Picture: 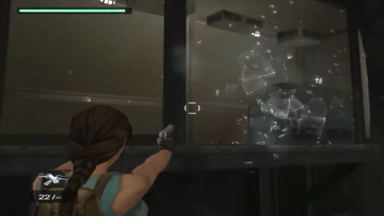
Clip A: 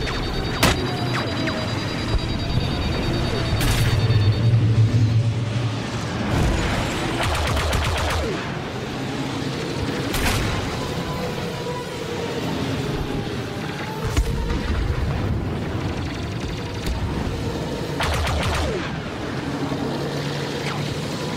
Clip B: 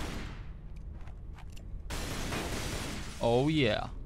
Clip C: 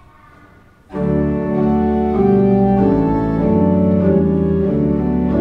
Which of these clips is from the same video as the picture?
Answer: B